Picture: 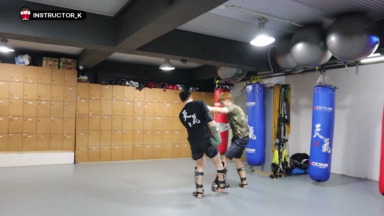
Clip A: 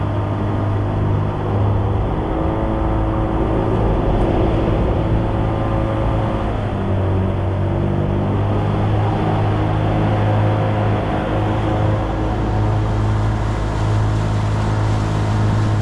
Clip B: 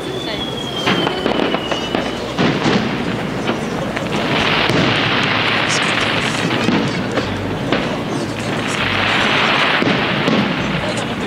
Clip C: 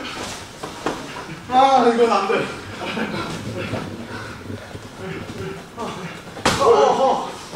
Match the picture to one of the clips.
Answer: C